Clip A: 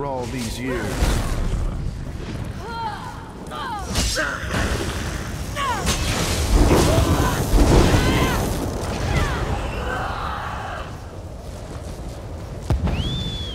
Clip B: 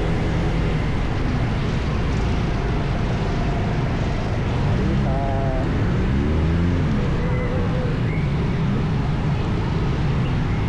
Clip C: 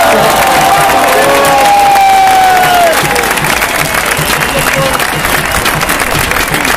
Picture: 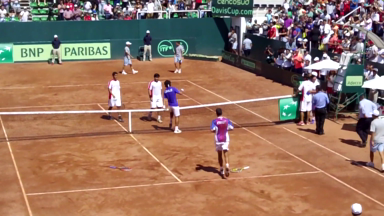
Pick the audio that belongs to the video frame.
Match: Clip C